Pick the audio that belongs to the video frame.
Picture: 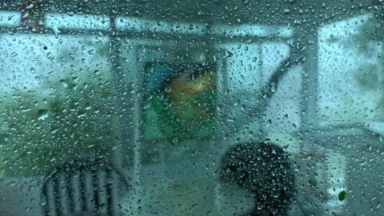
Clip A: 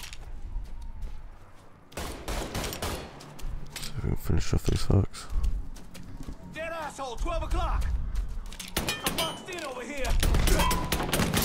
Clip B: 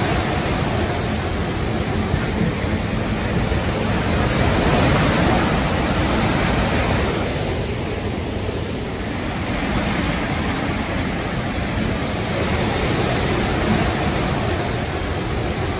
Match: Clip B